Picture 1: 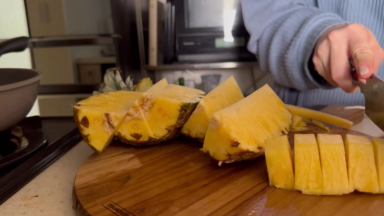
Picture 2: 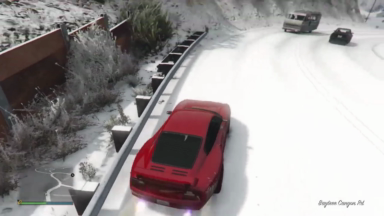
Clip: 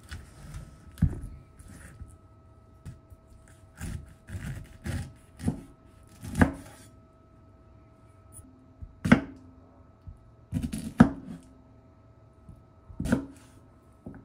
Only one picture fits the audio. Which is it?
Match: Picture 1